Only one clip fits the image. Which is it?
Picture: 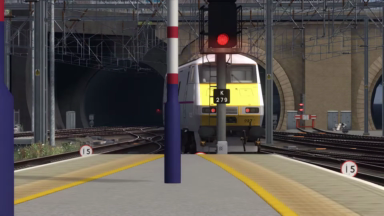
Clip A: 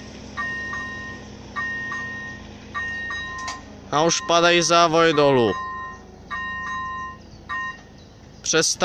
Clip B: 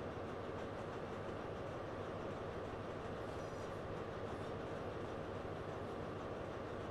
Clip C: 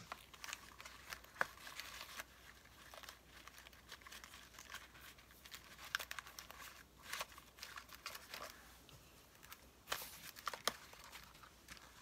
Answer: B